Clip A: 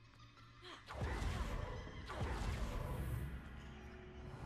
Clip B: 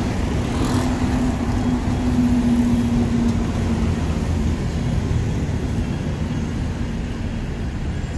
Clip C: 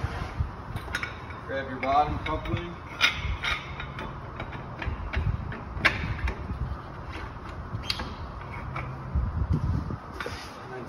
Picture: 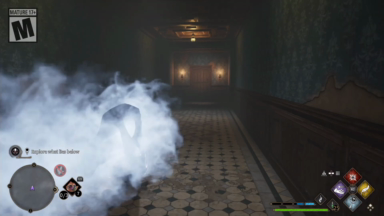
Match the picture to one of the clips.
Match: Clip A